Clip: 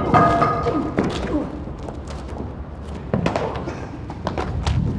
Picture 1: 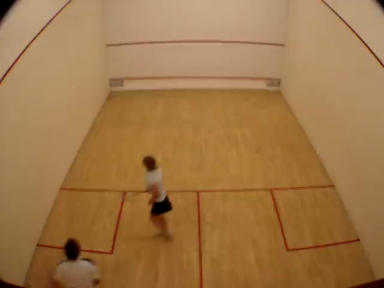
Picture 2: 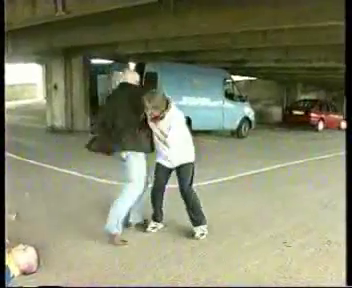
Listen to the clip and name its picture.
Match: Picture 2